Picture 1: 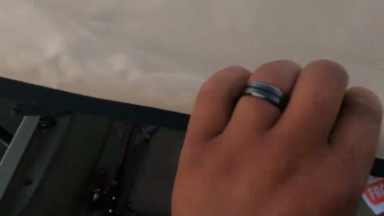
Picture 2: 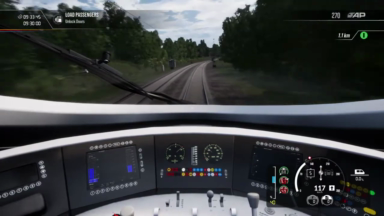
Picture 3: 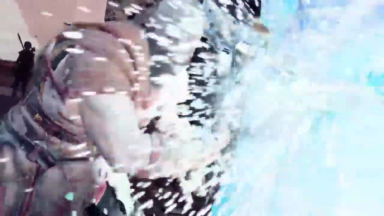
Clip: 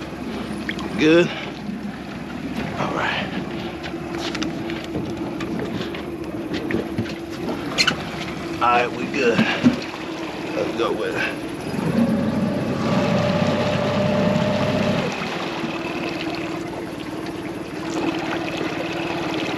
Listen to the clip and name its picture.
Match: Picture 1